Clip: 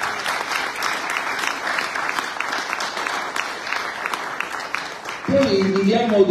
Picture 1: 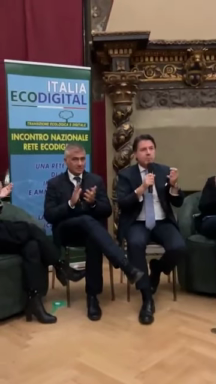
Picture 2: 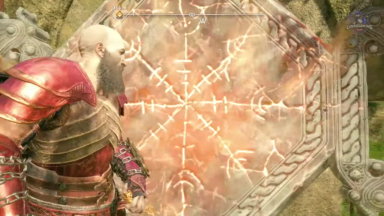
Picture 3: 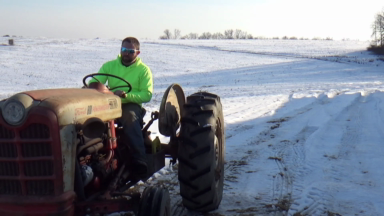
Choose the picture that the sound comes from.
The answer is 1